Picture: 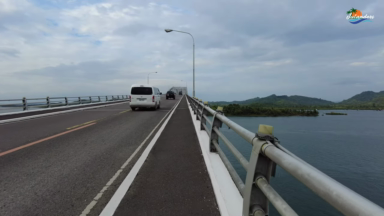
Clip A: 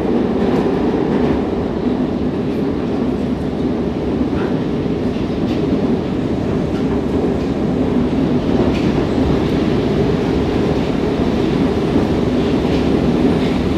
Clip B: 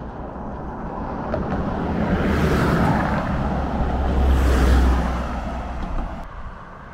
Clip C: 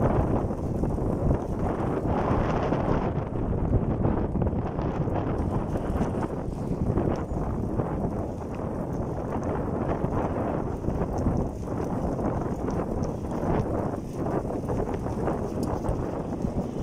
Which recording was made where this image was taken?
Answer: B